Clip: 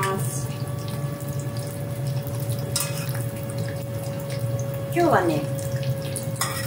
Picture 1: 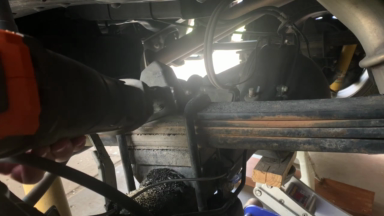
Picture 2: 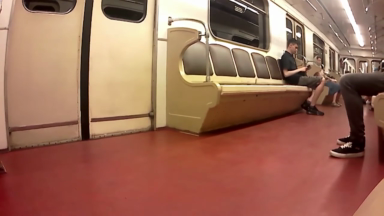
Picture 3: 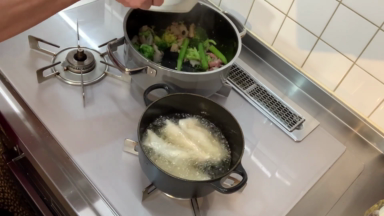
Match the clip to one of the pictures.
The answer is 3